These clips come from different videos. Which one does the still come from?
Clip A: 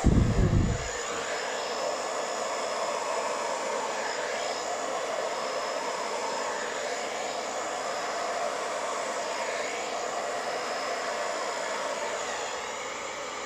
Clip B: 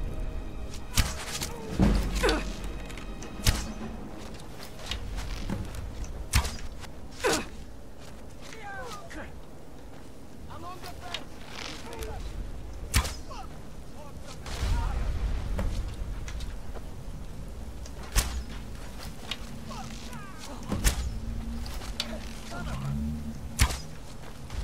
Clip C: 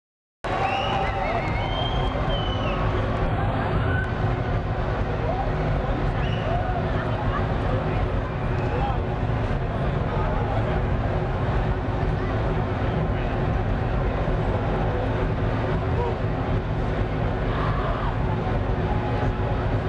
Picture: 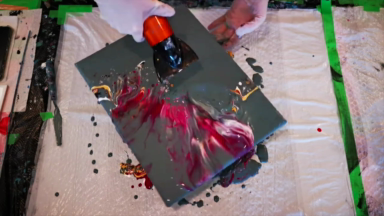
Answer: A